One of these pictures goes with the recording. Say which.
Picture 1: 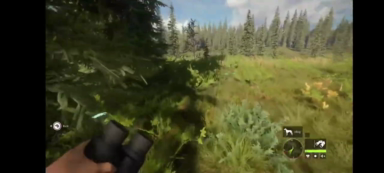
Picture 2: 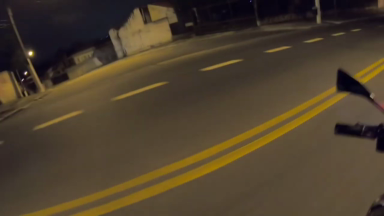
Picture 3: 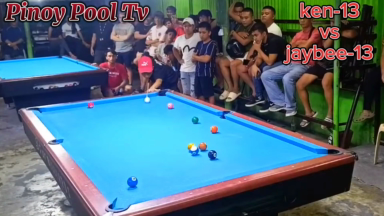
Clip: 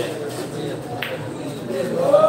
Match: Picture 3